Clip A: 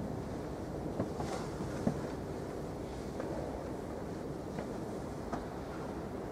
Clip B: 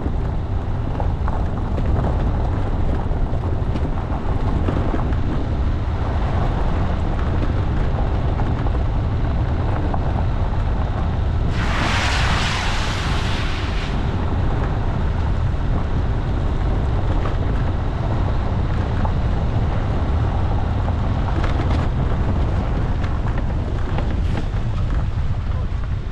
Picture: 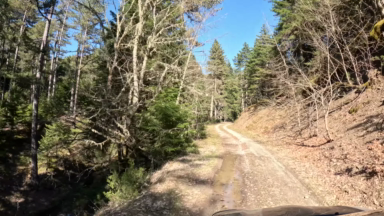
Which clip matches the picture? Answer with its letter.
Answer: B